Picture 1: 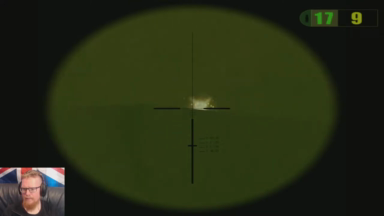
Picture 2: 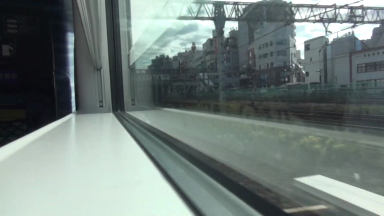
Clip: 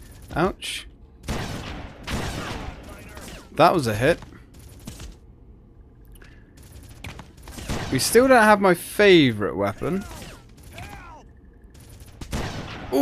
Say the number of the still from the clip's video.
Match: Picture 1